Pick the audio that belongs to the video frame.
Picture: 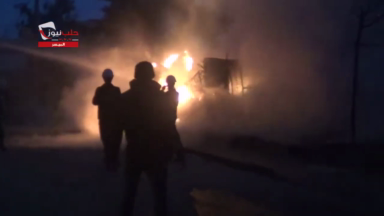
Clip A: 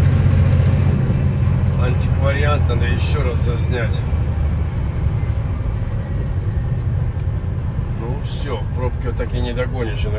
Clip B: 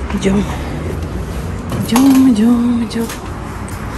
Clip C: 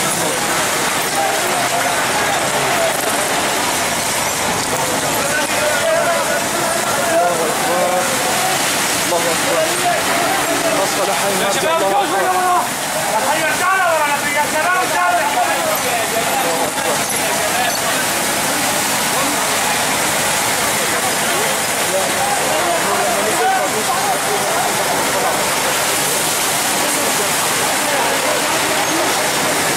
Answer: C